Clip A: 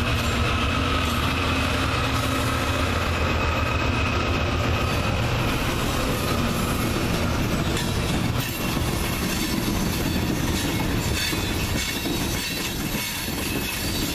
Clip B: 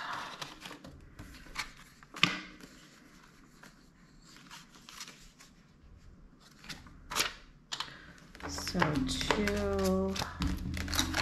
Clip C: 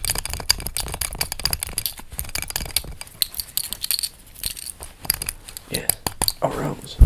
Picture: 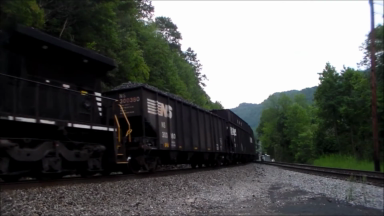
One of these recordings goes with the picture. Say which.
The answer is A